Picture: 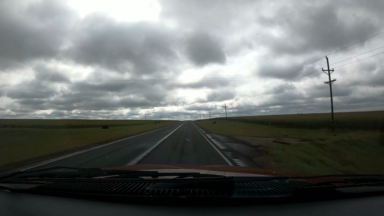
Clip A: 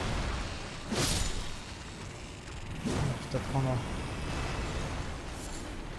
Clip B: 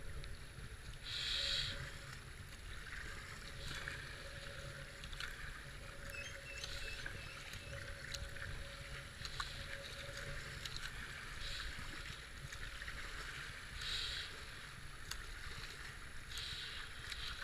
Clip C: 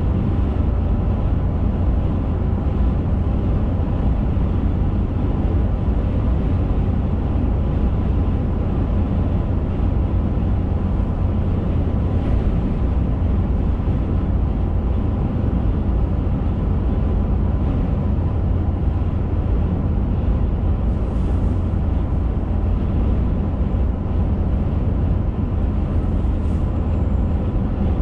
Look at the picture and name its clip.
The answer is C